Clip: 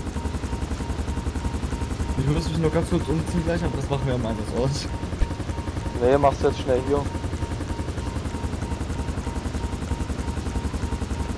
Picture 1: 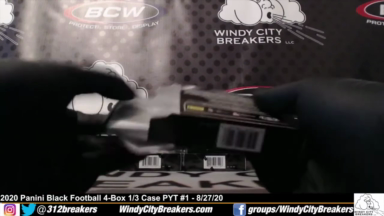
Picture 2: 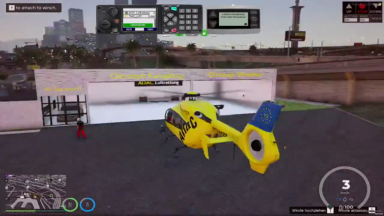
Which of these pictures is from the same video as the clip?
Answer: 2